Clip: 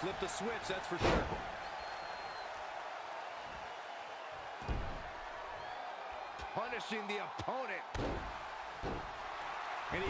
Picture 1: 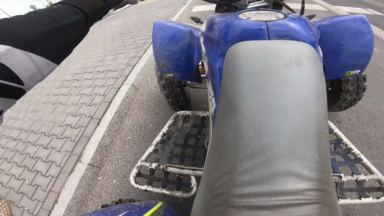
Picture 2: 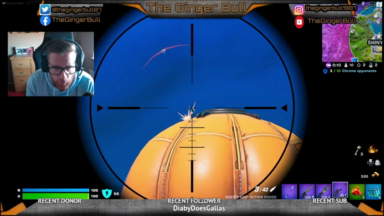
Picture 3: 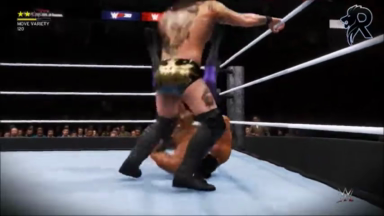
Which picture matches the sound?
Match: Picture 3